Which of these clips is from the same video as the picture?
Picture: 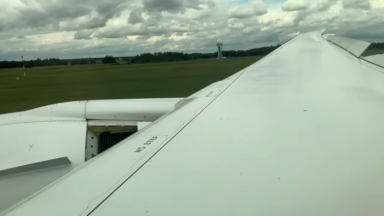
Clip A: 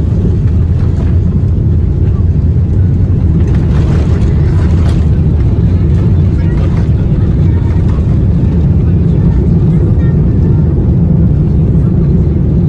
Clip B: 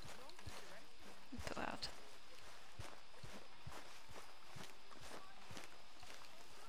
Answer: A